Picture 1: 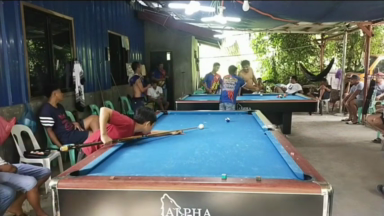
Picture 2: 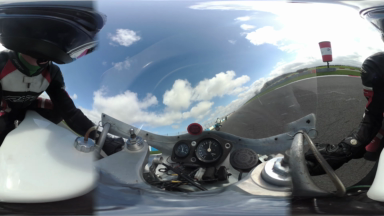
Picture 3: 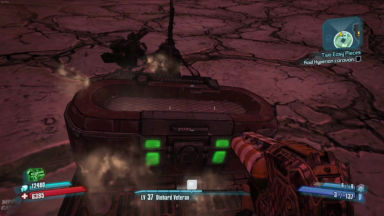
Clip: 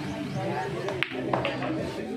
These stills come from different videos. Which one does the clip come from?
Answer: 1